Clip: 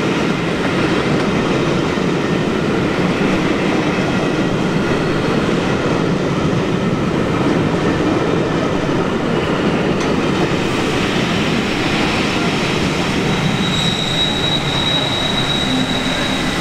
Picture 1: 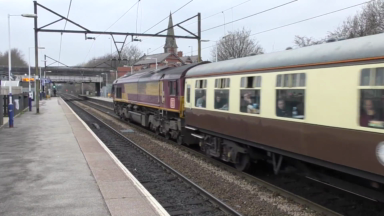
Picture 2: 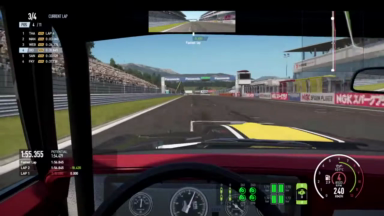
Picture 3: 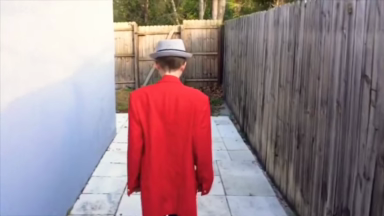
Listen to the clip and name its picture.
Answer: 1